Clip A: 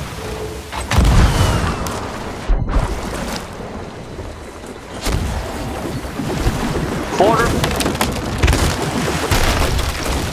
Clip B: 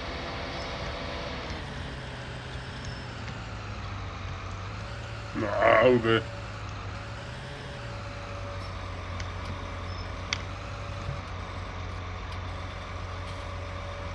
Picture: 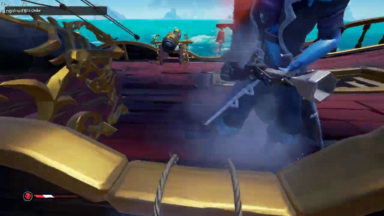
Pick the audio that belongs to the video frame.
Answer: A